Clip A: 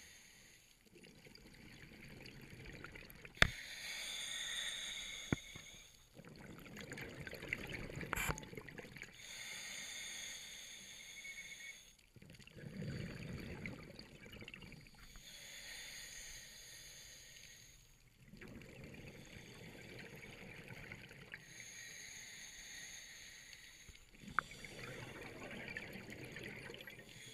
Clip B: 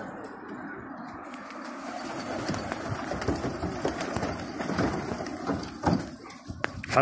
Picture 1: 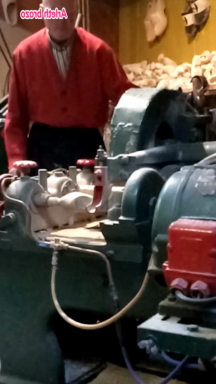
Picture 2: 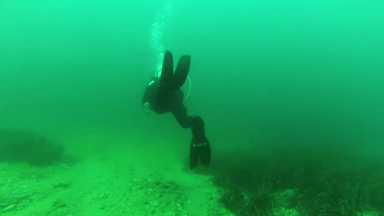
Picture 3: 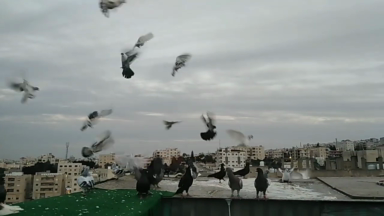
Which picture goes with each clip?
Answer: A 2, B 3